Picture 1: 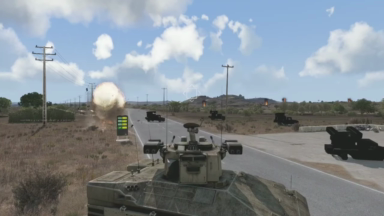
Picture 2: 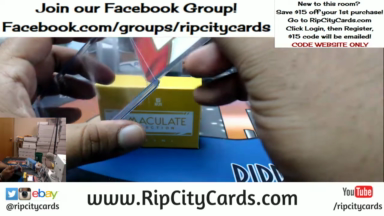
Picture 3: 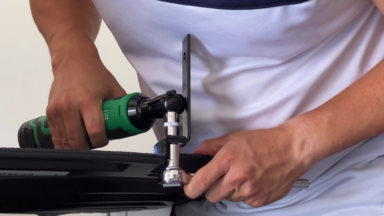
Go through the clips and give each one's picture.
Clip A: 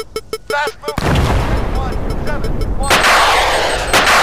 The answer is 1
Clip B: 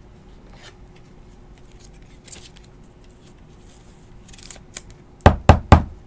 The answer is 2